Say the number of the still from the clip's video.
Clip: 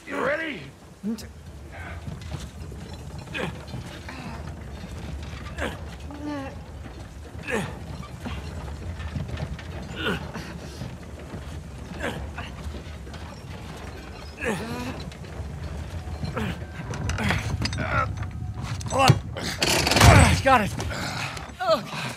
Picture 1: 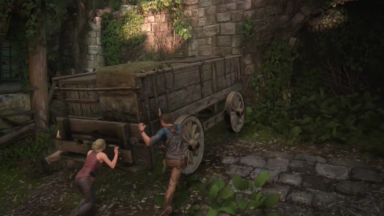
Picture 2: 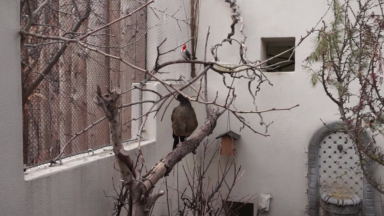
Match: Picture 1